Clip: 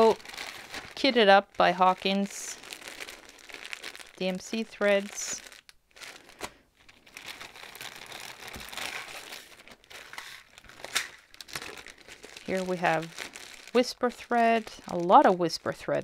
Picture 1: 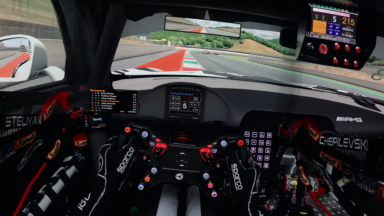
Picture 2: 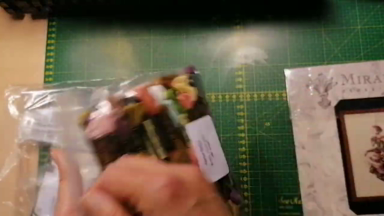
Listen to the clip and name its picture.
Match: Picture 2